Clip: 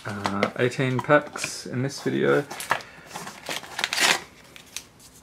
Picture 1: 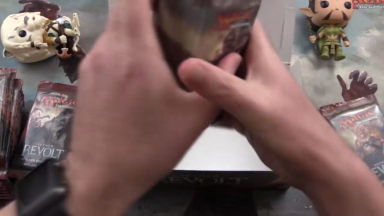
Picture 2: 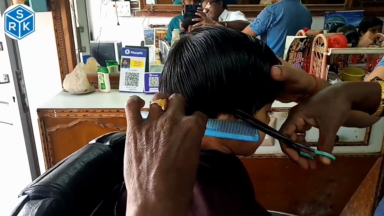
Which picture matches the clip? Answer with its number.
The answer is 1